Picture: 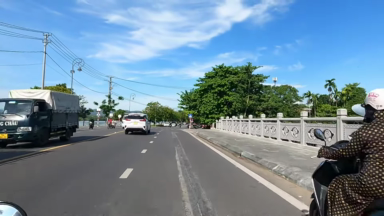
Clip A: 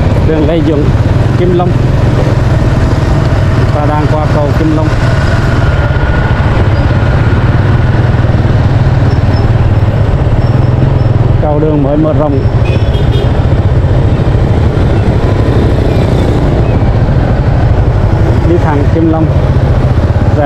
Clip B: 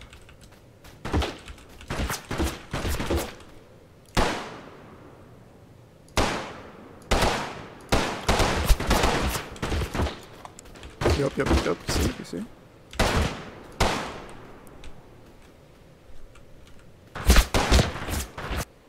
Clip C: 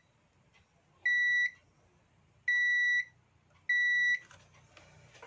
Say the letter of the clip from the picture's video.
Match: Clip A